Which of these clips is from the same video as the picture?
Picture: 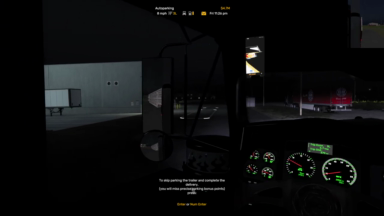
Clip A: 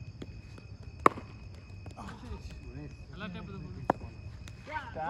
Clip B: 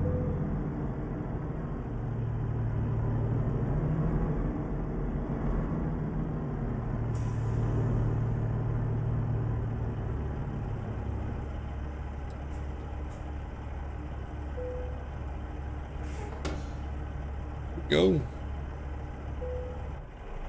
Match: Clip B